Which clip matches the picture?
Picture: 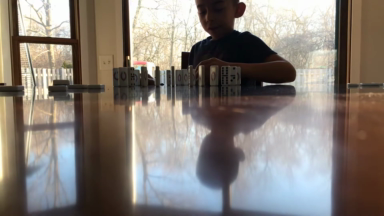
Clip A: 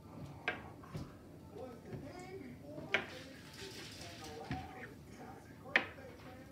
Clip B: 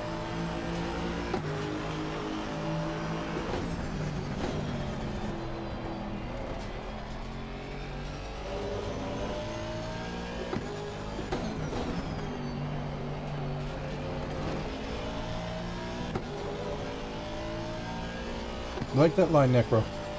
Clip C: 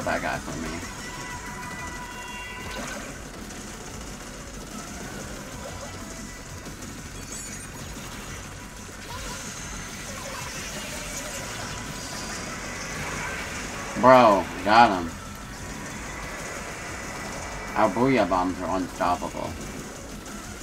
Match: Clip A